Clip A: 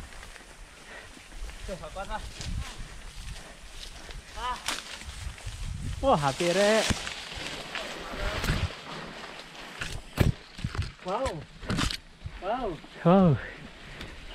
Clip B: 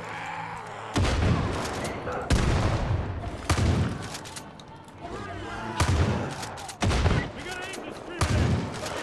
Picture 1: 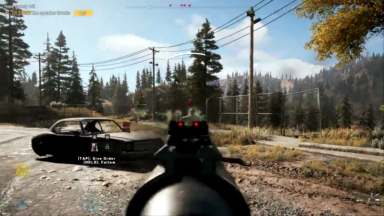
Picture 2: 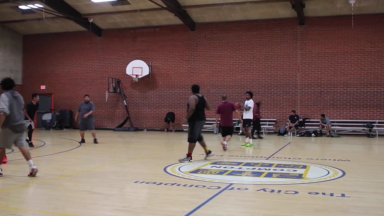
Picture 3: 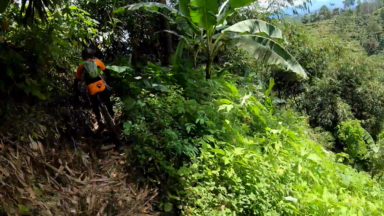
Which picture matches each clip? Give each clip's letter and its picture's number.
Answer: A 3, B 1